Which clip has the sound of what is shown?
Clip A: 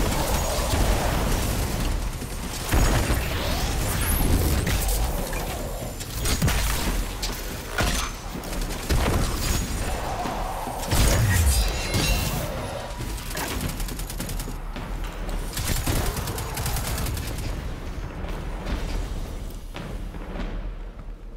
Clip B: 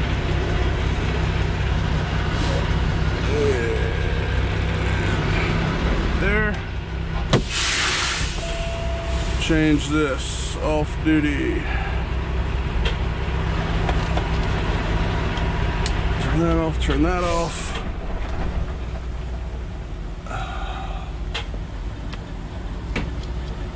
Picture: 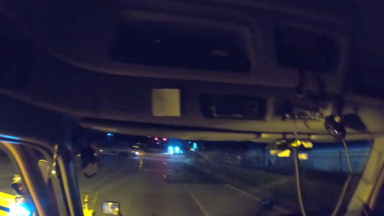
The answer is B